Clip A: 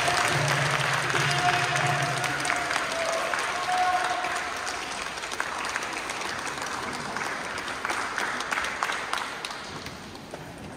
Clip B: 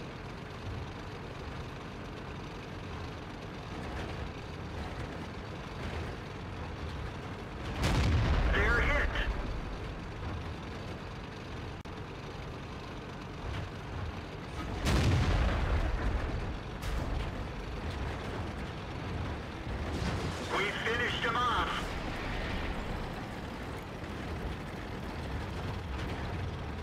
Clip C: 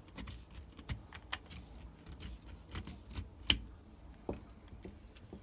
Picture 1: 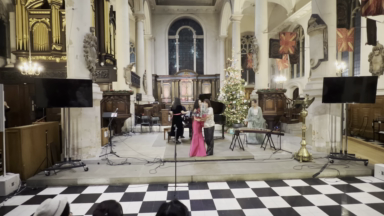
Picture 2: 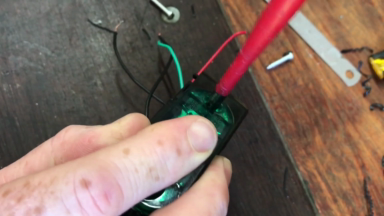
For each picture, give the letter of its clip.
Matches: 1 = A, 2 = C